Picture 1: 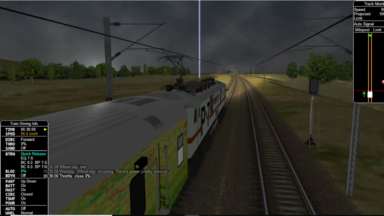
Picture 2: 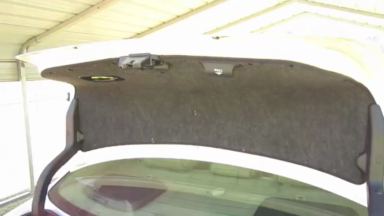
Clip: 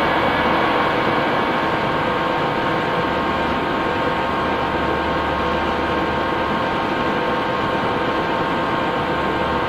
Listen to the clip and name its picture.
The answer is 1